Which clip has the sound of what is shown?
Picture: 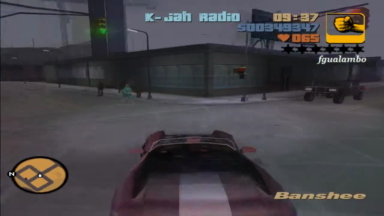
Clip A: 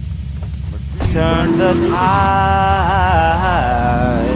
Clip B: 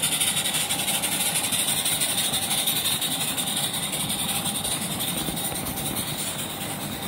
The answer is A